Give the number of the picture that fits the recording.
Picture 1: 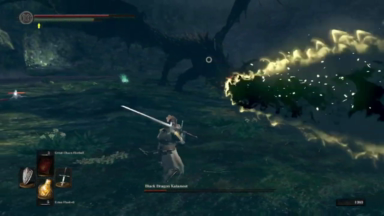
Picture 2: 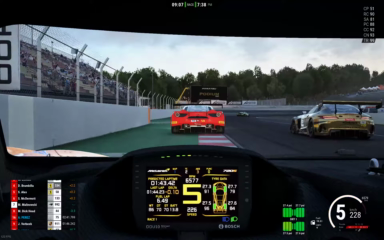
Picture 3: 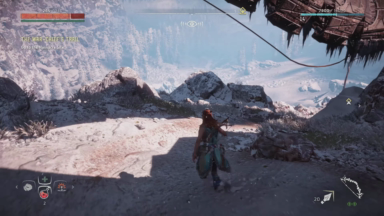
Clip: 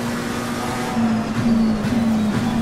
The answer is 2